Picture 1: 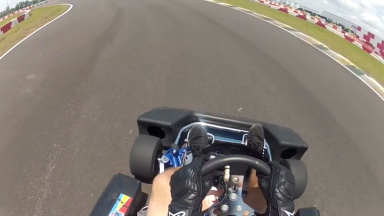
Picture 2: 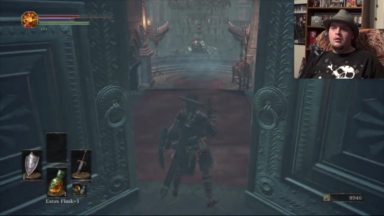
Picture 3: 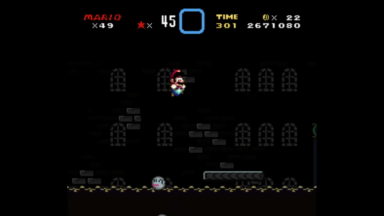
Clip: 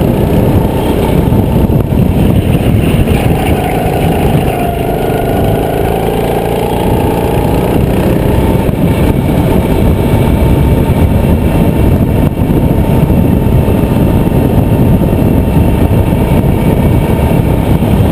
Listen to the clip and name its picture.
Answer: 1